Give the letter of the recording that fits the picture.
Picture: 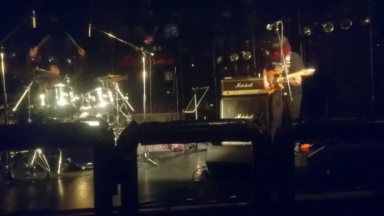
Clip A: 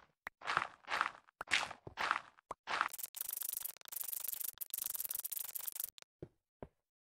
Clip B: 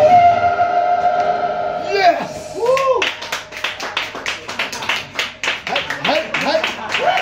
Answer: B